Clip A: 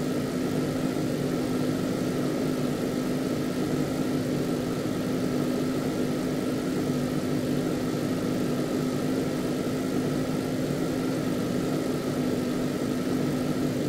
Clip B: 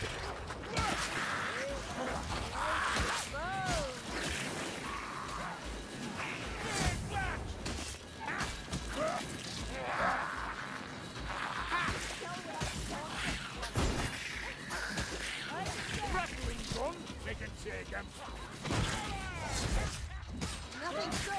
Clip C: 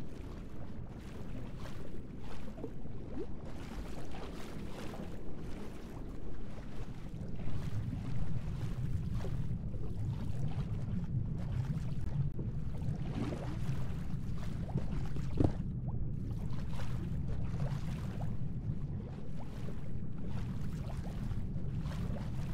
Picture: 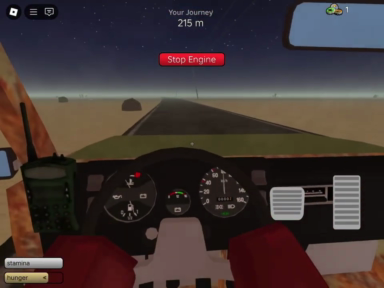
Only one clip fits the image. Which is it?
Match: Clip A